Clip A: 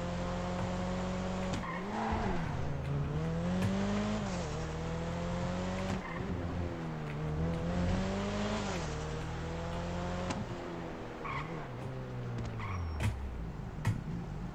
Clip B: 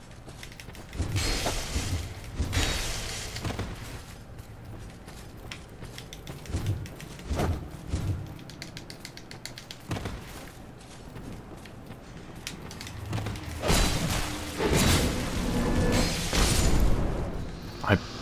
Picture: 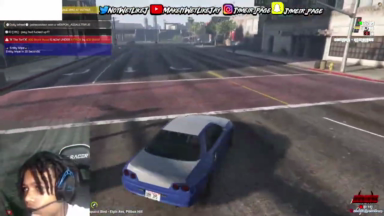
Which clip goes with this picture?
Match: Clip A